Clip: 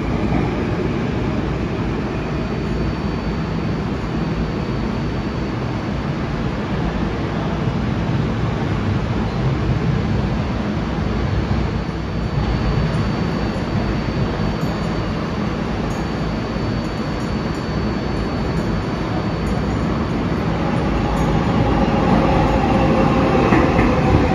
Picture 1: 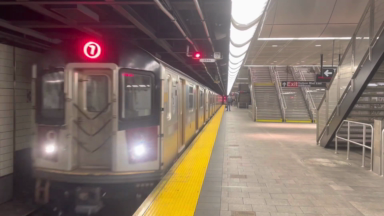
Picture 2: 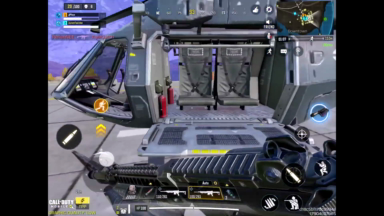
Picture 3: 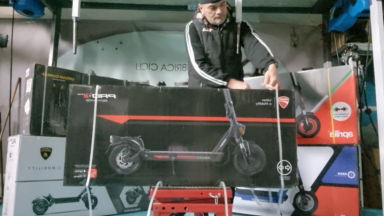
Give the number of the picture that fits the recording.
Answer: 1